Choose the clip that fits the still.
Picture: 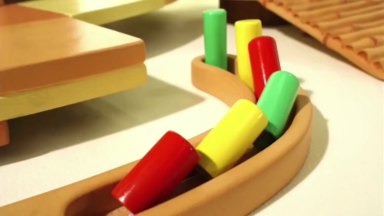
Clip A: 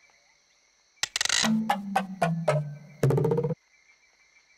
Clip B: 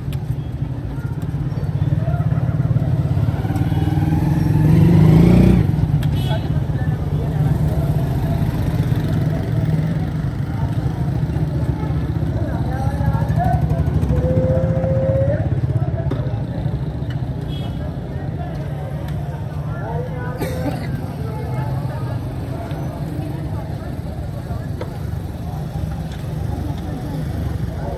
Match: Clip A